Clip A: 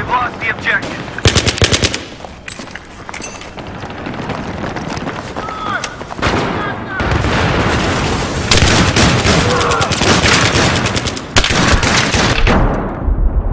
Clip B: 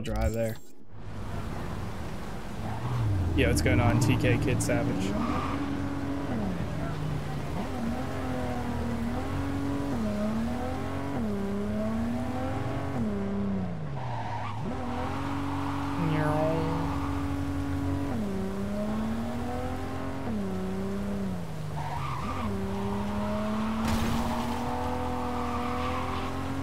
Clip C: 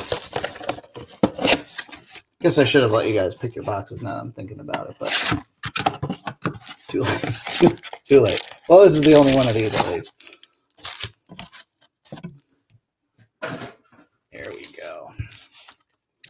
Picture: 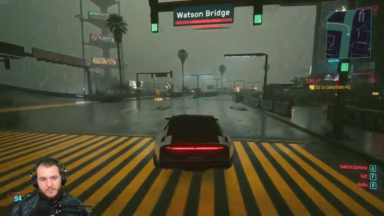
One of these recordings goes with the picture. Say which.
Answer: B